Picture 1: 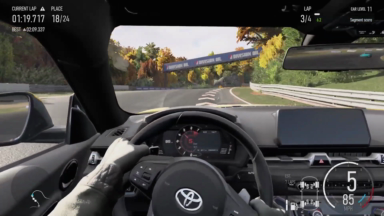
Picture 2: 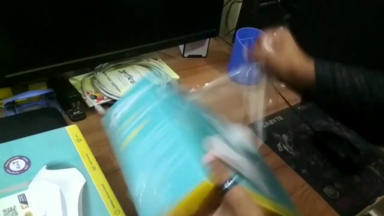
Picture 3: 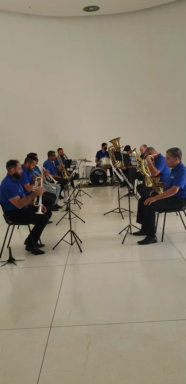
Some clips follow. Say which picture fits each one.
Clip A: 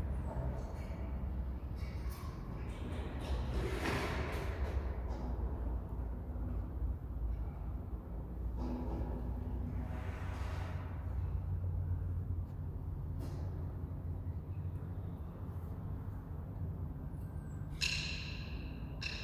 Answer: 3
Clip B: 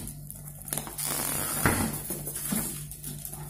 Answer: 2